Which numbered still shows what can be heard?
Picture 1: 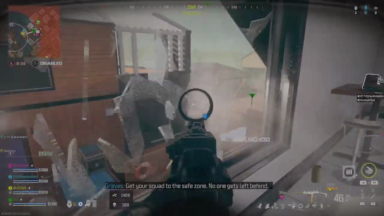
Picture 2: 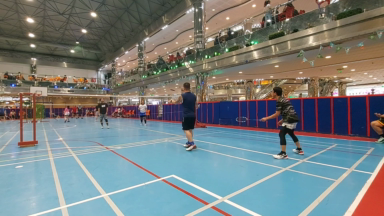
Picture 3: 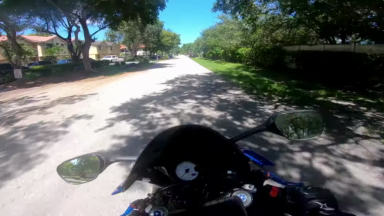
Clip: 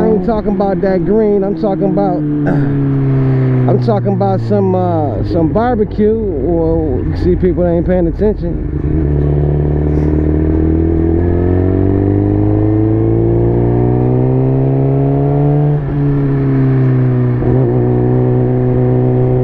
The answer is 3